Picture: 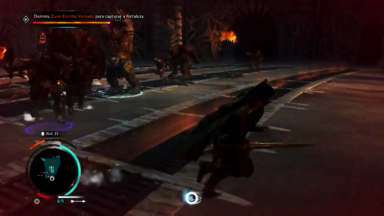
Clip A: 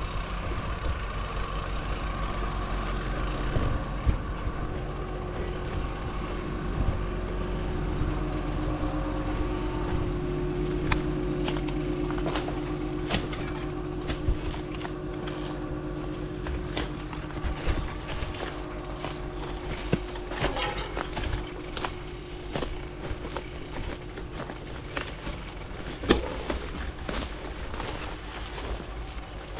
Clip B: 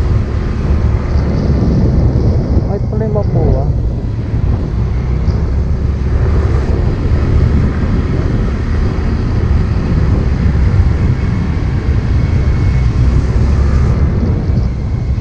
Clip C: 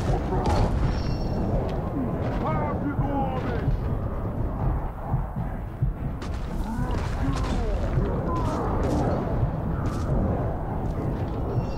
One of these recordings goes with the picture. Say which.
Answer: C